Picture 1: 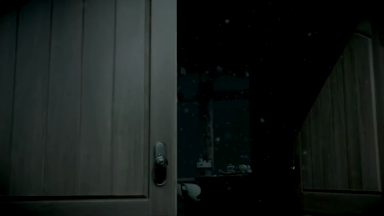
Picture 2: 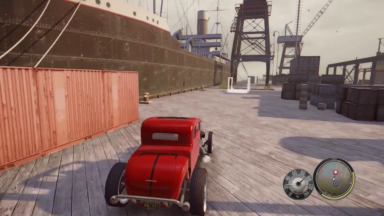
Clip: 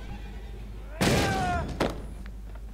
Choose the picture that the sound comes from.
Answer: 1